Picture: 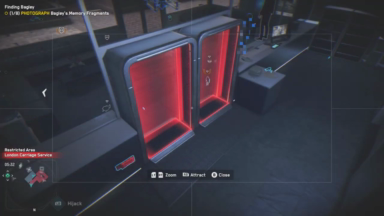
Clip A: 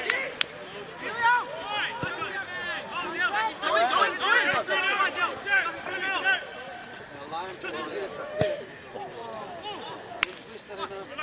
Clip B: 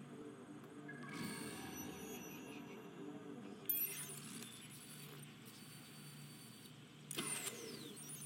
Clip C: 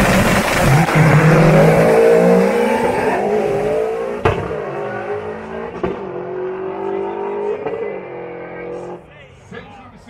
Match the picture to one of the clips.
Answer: B